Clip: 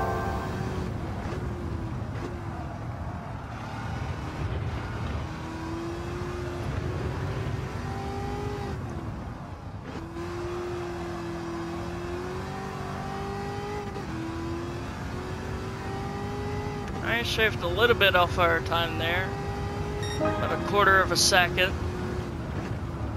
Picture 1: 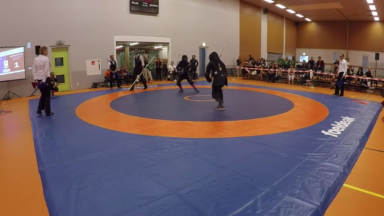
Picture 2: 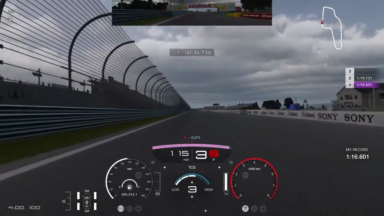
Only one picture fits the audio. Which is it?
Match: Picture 2